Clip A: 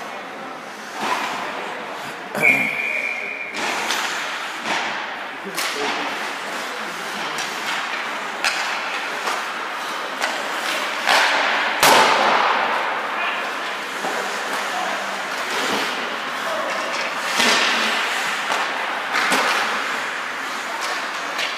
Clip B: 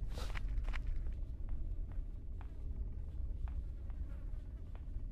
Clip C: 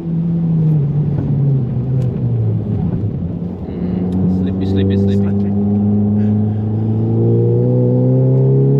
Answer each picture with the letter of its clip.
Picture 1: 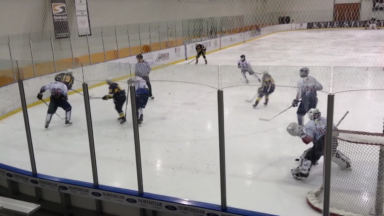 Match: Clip A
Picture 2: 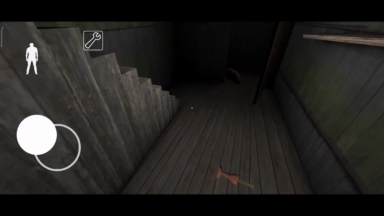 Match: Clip B